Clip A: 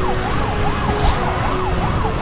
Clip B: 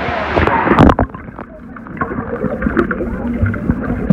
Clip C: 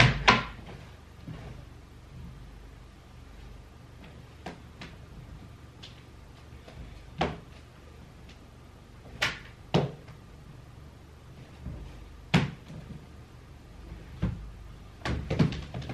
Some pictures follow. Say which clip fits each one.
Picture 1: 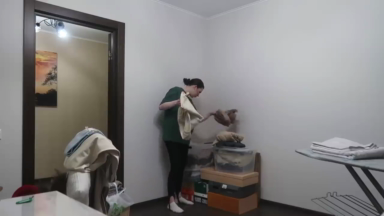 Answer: C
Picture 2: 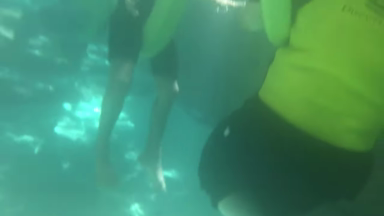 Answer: B